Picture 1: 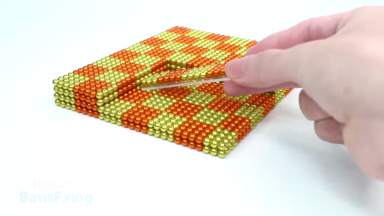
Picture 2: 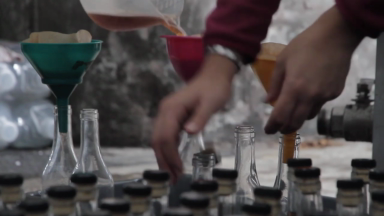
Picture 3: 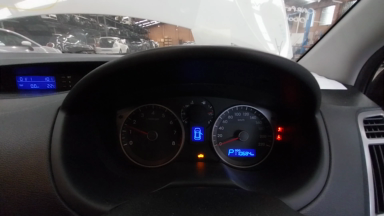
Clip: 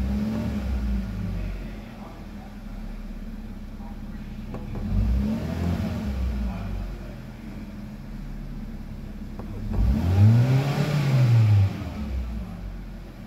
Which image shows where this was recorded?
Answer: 3